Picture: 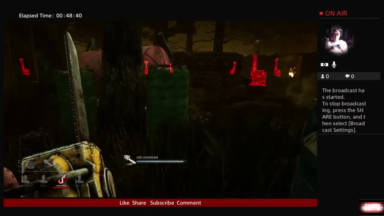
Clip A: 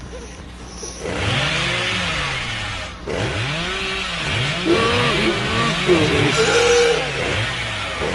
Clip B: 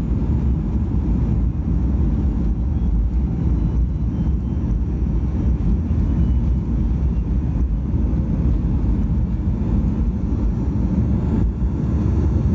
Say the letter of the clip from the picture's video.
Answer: A